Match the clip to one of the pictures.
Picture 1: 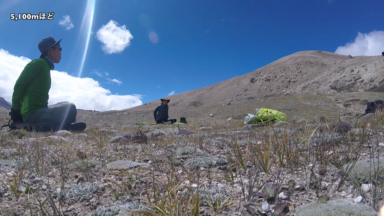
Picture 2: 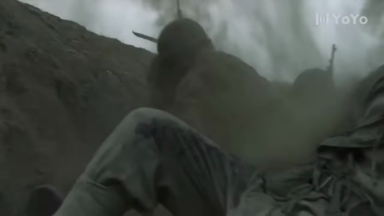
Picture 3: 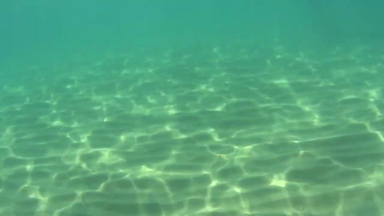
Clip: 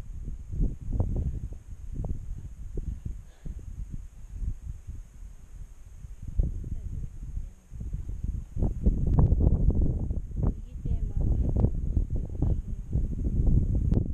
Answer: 1